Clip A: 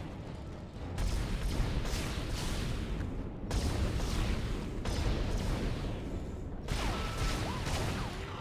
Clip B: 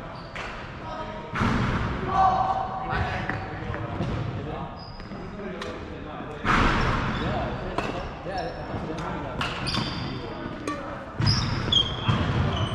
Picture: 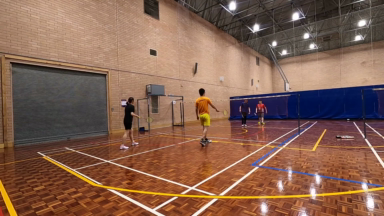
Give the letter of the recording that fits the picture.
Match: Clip B